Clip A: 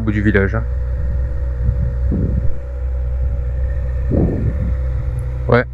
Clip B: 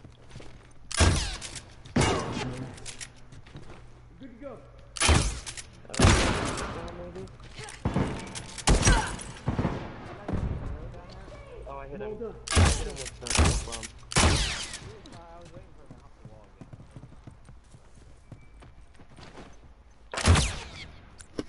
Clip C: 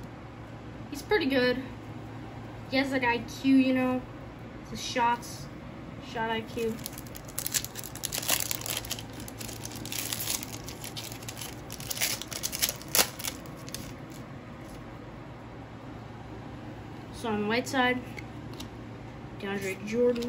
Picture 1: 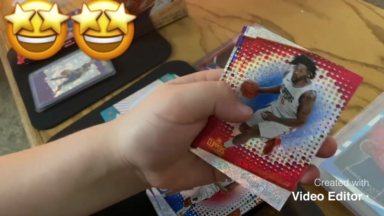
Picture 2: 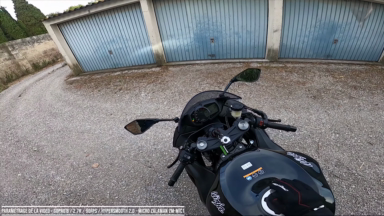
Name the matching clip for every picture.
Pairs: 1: C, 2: A